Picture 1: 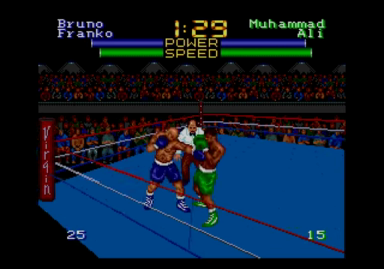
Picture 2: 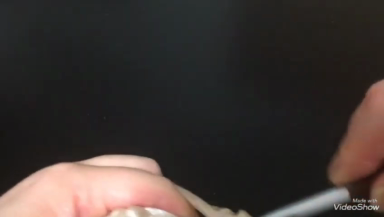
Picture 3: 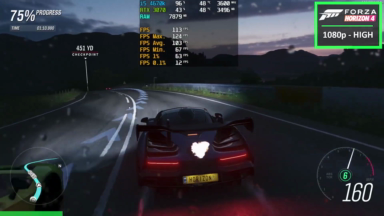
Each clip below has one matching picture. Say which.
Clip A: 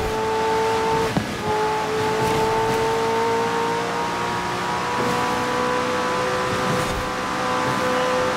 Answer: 3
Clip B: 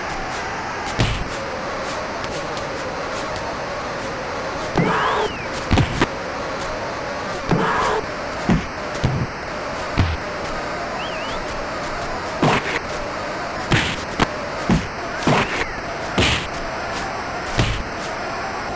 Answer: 1